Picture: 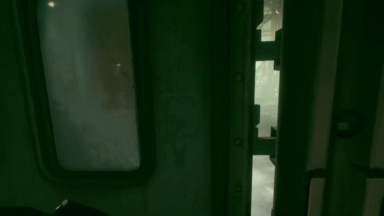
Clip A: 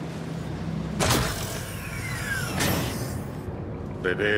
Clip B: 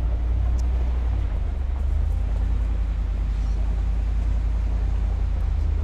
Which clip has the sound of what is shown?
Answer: A